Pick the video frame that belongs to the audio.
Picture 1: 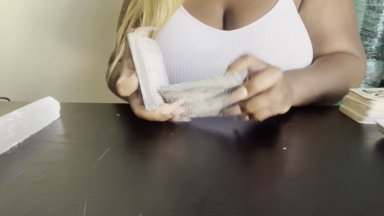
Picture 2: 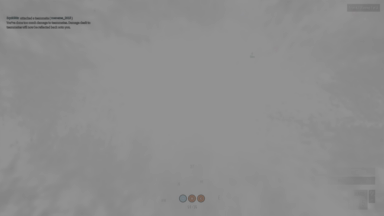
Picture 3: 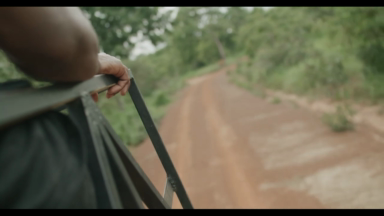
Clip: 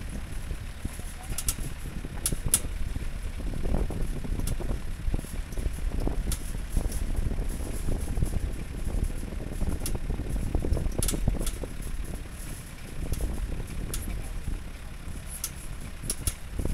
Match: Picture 3